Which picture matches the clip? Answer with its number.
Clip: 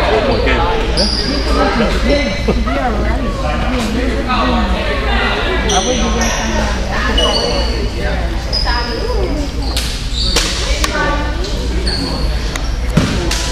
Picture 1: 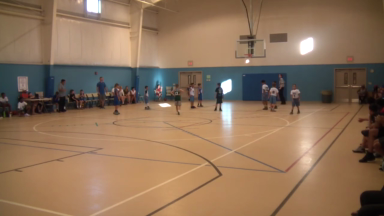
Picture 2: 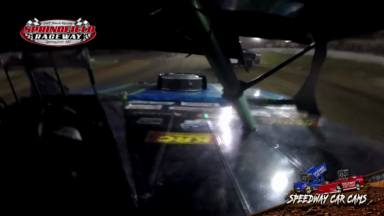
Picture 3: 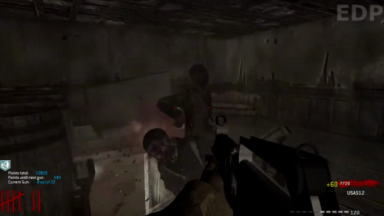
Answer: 1